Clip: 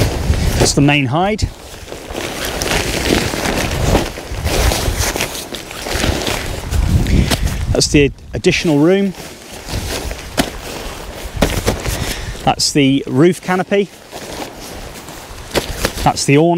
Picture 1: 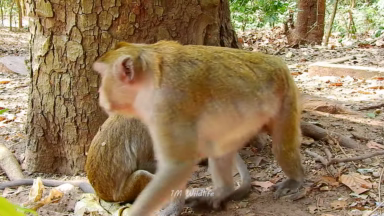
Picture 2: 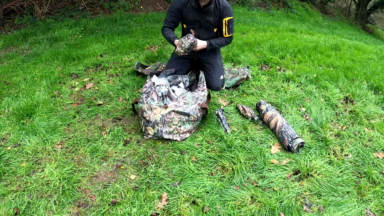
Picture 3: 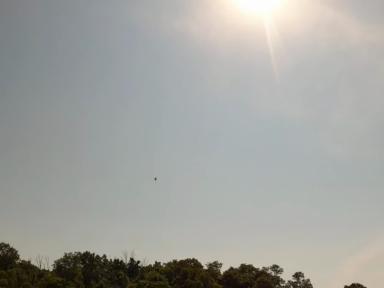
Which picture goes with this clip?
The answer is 2